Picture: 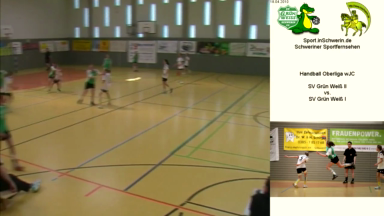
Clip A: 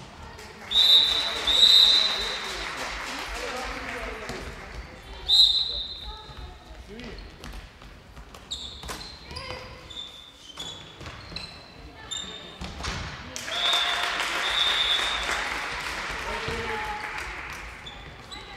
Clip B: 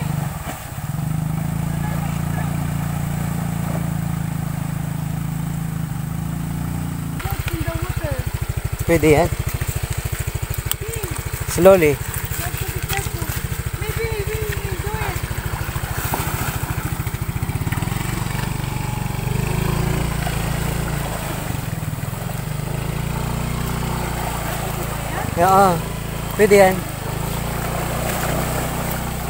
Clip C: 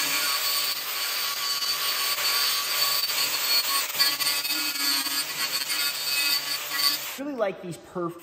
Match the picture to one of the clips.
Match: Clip A